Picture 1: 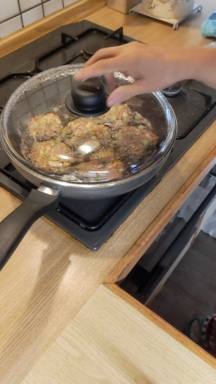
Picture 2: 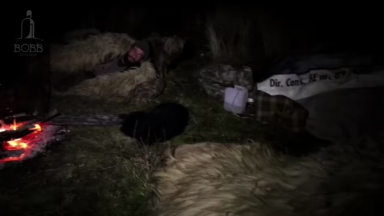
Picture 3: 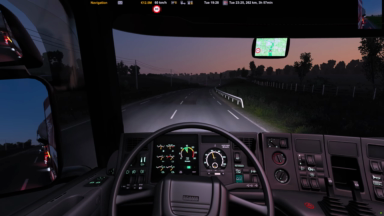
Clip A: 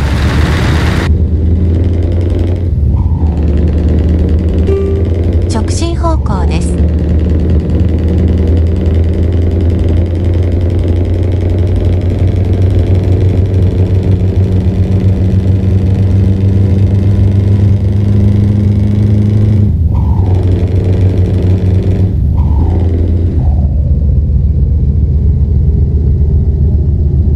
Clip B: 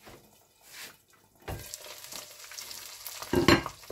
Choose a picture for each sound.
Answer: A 3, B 1